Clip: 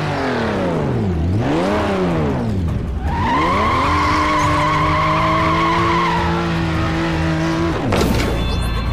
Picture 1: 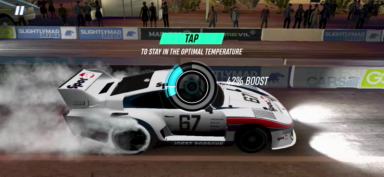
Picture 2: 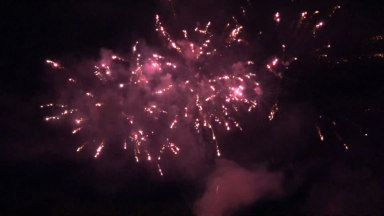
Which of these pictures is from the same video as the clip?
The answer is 1